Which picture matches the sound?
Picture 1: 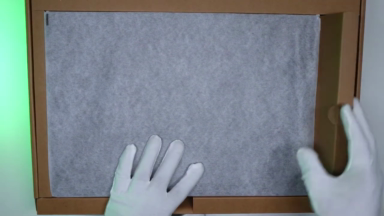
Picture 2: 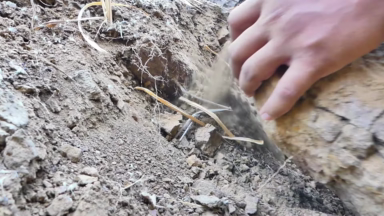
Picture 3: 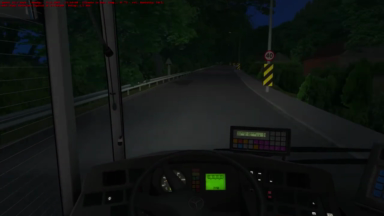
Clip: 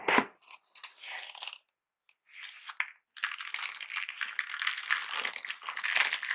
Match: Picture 1